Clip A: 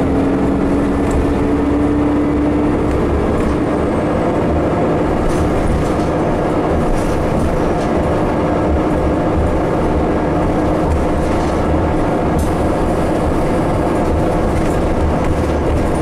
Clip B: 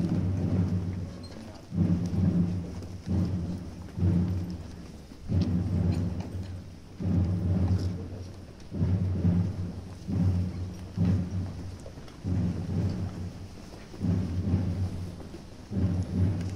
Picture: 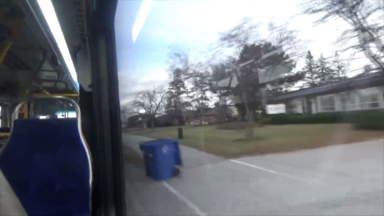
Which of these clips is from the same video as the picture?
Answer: A